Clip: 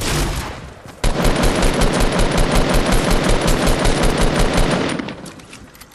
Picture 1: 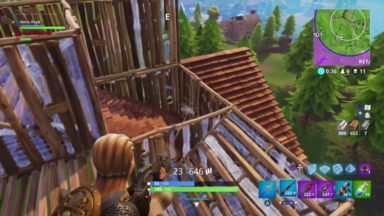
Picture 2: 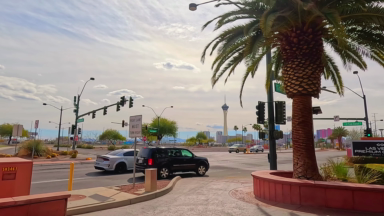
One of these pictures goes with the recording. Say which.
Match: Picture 1